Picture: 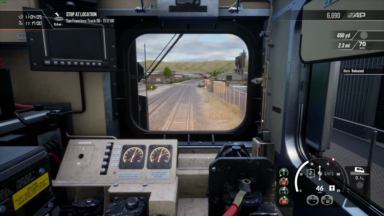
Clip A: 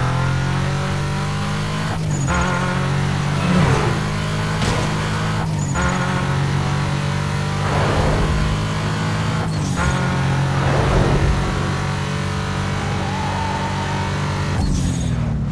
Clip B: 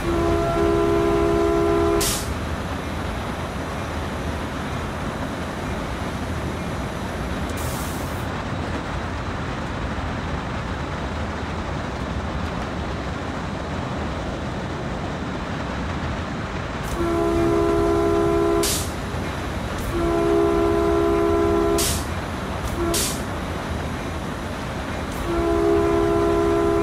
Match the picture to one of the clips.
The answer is B